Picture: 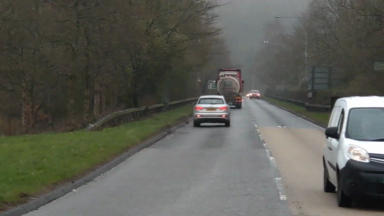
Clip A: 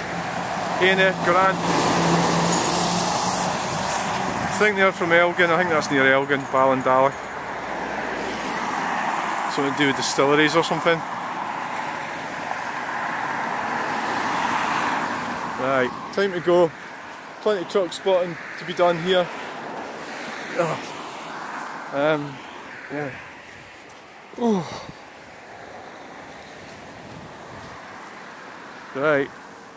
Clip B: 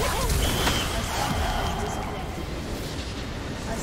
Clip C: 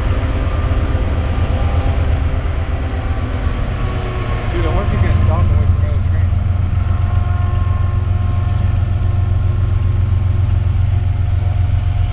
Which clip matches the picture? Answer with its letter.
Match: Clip A